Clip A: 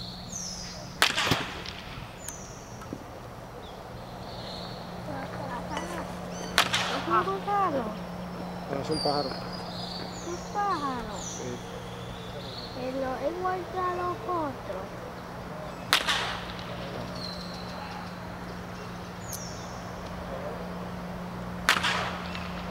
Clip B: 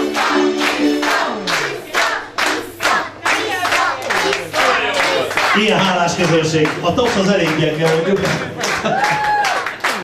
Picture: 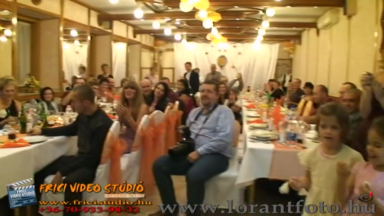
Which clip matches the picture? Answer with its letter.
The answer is B